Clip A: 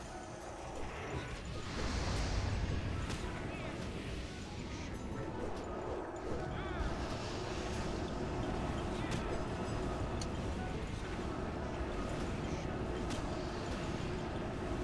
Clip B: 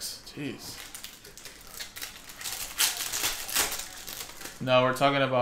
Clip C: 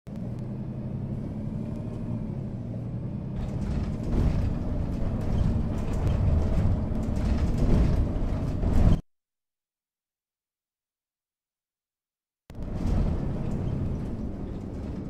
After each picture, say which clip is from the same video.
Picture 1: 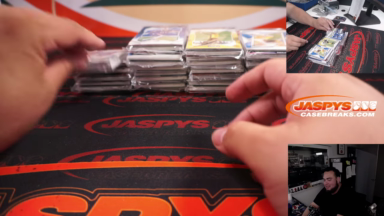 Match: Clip B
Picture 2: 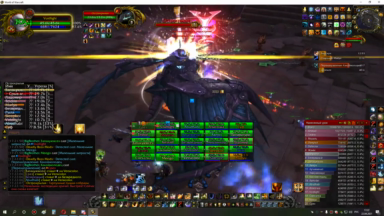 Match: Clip A